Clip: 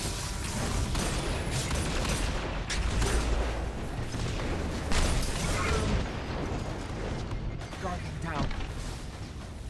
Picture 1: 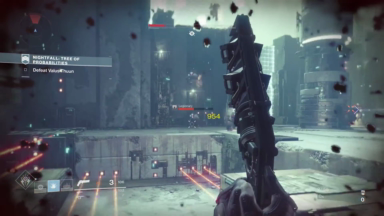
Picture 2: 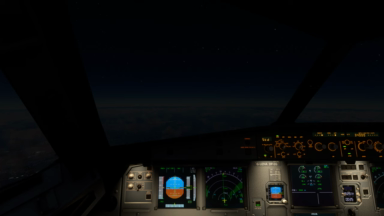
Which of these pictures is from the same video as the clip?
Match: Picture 1